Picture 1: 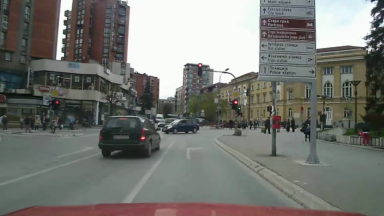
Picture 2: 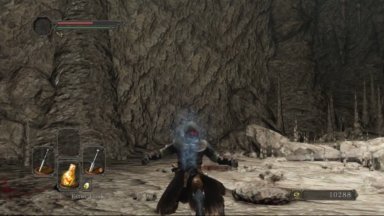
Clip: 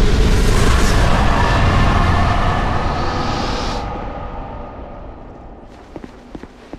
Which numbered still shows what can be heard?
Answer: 2